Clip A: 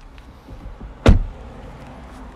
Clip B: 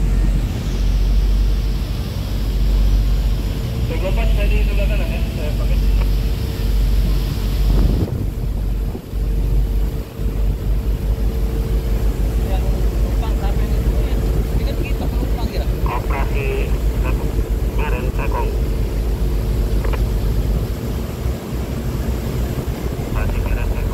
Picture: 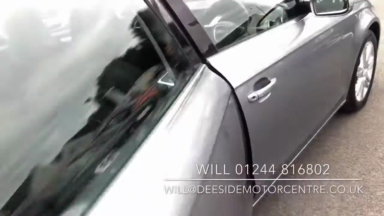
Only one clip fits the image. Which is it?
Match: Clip A